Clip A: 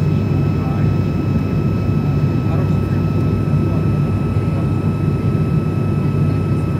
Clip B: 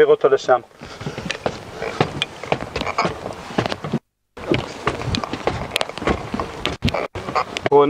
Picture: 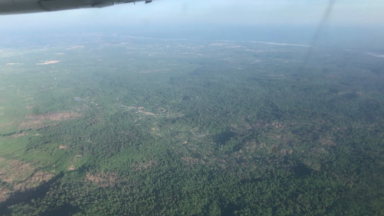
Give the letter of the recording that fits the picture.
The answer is A